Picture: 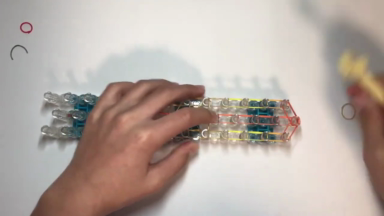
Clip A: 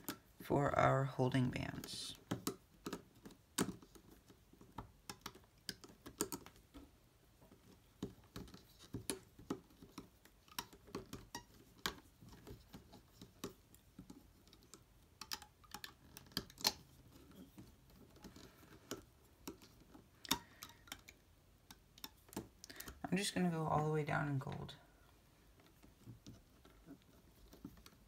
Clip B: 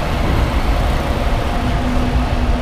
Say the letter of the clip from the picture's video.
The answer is A